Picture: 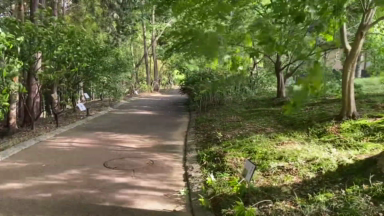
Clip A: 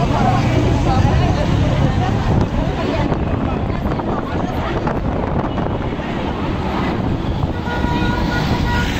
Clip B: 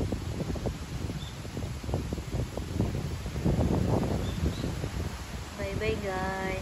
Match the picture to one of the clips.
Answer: B